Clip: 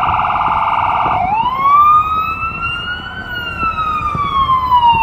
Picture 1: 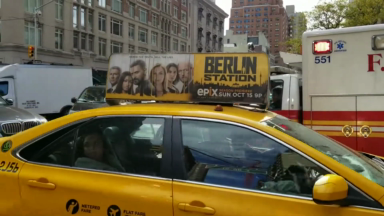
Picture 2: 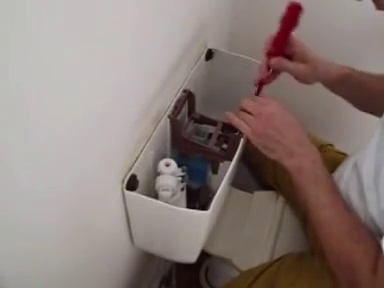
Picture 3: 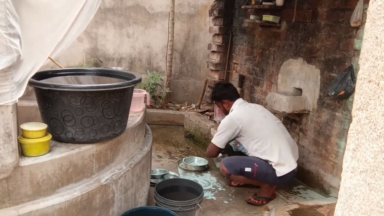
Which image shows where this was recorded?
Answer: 1